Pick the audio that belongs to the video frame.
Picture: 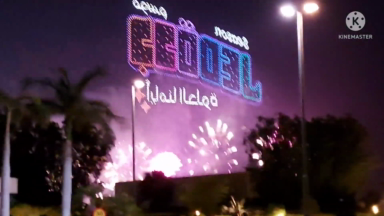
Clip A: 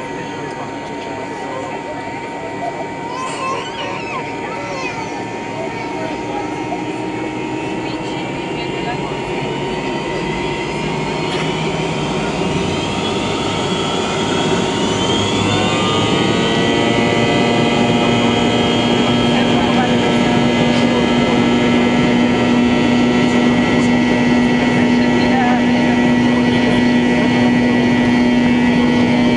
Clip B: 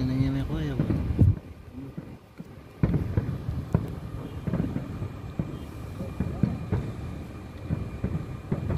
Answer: B